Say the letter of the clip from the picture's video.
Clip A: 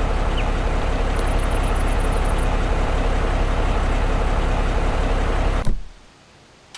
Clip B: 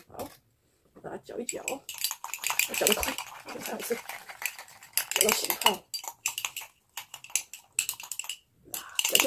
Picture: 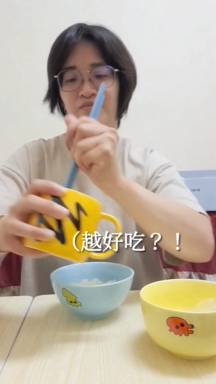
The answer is B